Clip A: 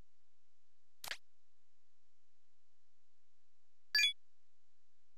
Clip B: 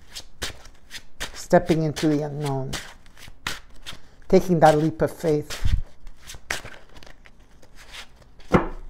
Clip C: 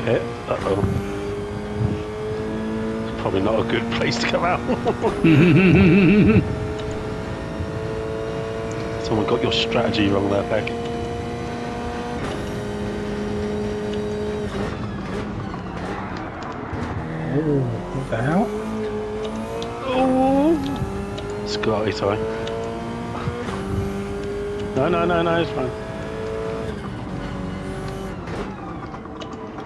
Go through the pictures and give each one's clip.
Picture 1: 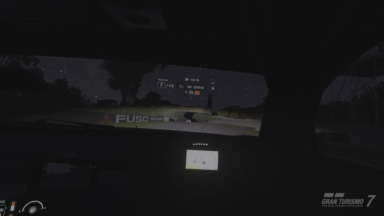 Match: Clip C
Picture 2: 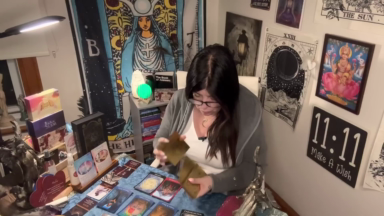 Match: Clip B